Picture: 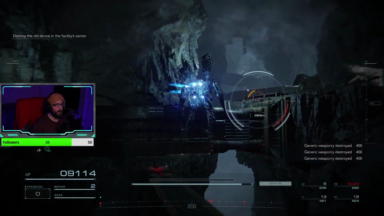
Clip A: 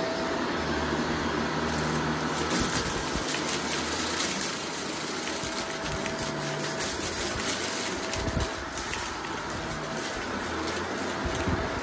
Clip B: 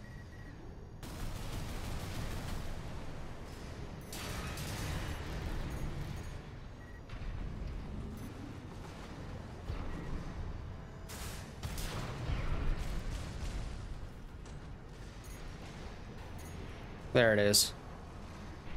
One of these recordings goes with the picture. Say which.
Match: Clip B